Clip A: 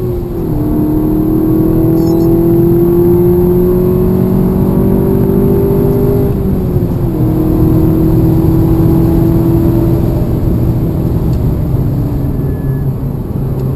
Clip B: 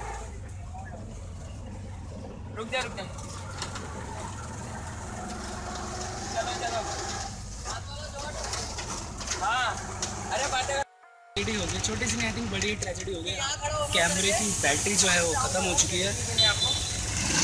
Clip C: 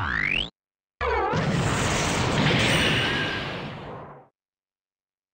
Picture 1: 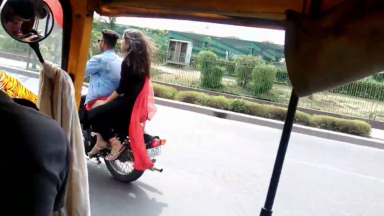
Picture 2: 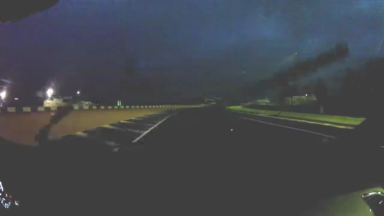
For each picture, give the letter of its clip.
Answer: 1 B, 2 A